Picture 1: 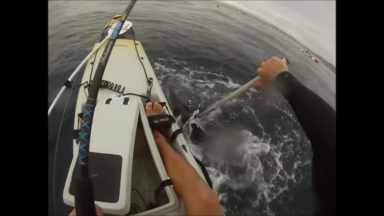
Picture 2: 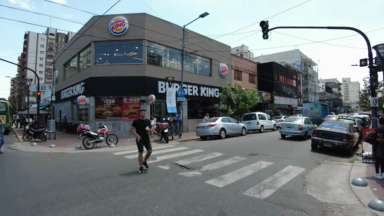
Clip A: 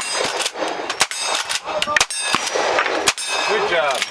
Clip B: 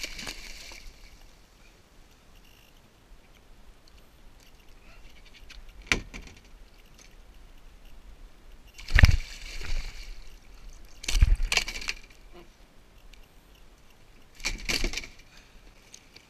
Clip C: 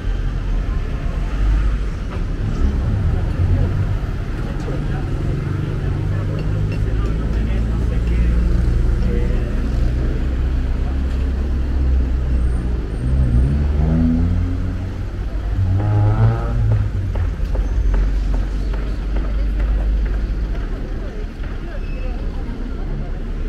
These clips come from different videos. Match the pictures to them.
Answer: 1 B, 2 C